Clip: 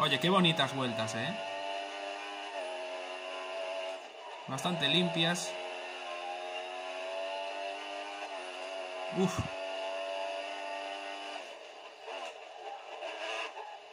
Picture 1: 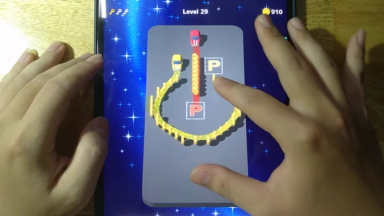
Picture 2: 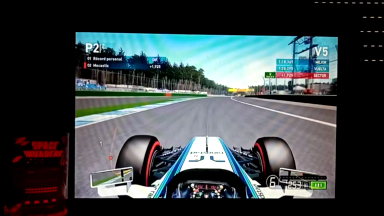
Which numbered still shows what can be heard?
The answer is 2